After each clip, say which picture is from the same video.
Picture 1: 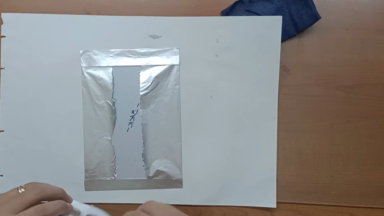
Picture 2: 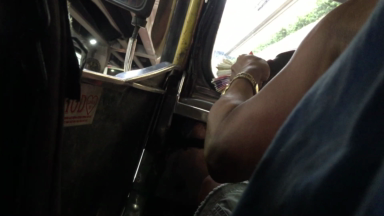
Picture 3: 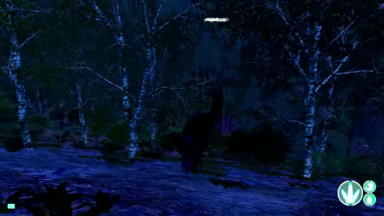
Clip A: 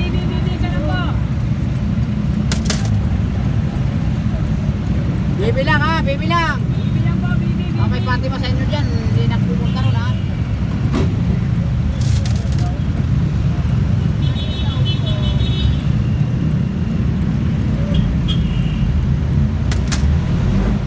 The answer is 2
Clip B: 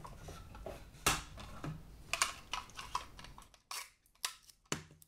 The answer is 1